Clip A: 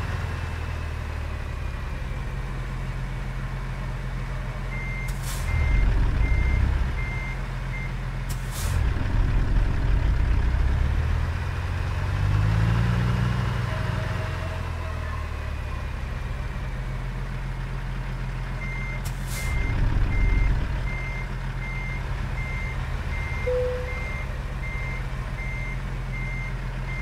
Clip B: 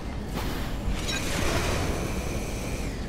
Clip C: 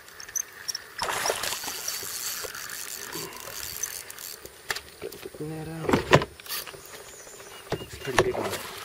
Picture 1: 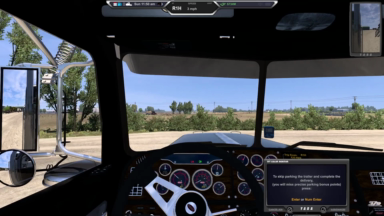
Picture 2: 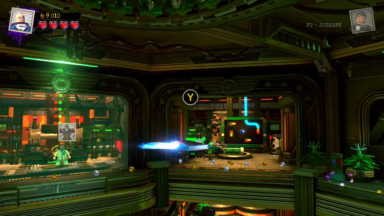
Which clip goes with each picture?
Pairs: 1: A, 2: B